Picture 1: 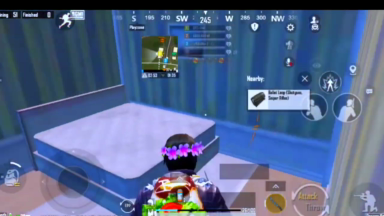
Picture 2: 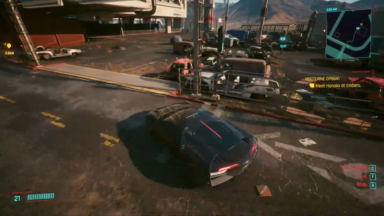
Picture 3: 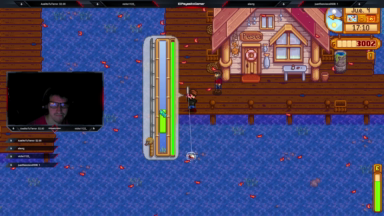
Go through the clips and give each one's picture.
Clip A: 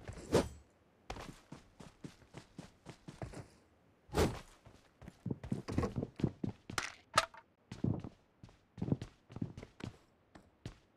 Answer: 1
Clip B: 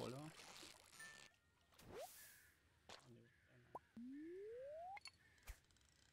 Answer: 3